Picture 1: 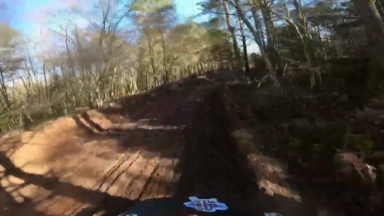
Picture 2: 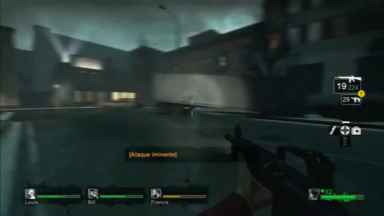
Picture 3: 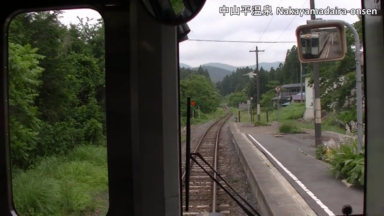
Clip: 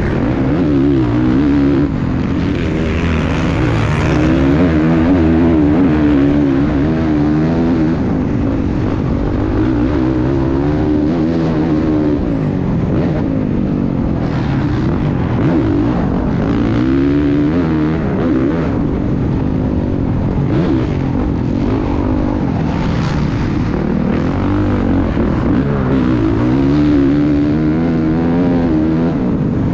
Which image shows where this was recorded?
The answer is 1